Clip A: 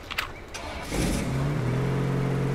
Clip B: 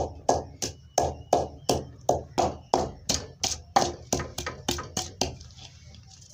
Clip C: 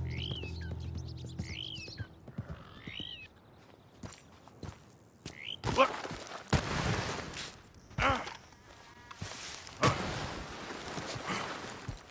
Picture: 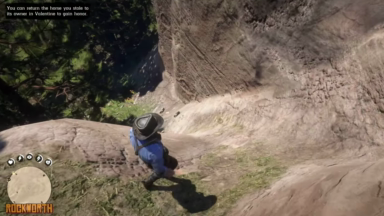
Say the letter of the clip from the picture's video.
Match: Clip C